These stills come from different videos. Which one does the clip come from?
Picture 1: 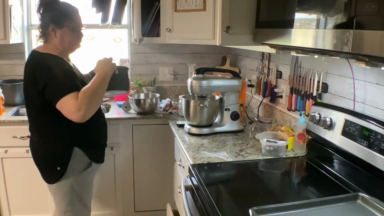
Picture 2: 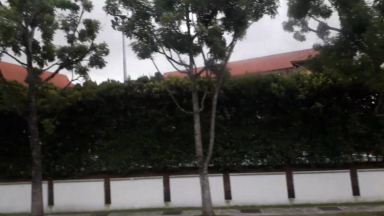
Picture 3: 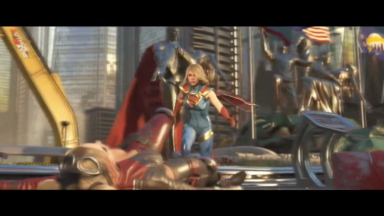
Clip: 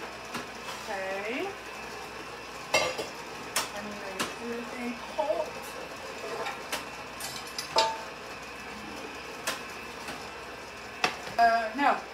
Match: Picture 1